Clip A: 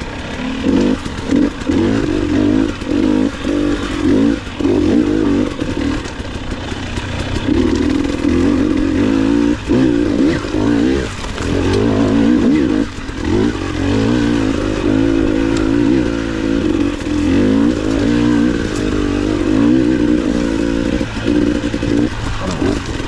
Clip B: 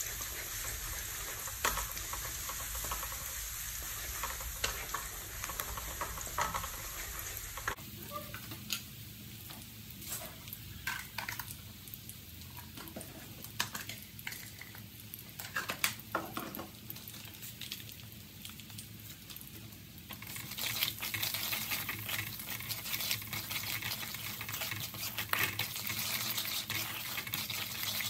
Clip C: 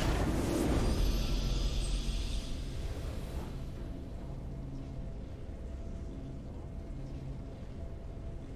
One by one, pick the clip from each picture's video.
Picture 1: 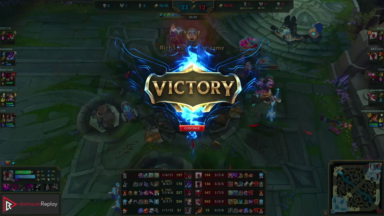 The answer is C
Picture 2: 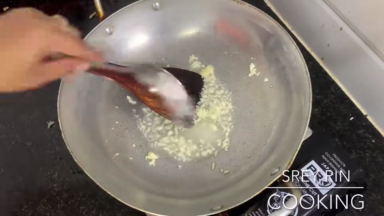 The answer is B